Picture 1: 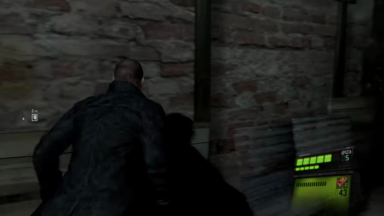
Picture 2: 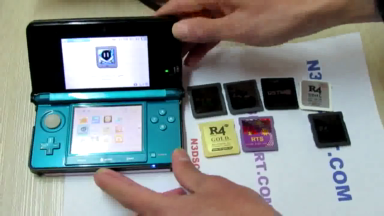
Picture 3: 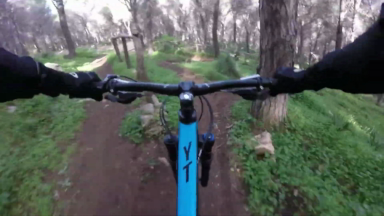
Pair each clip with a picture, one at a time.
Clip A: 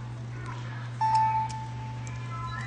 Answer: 2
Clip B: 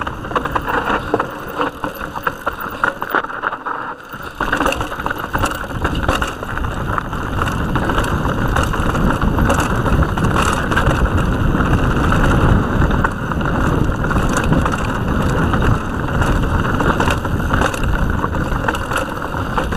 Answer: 3